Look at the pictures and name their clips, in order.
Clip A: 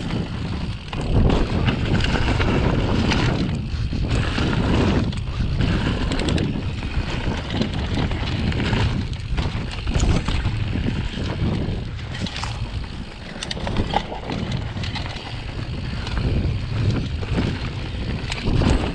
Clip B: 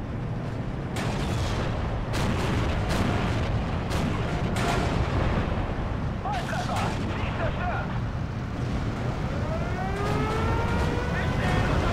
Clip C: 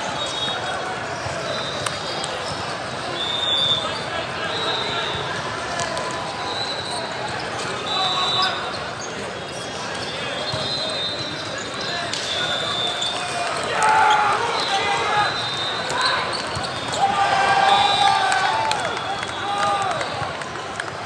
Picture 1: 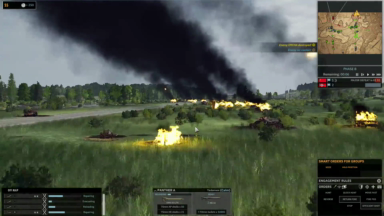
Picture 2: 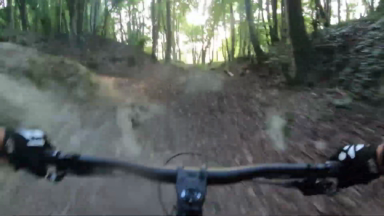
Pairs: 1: B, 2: A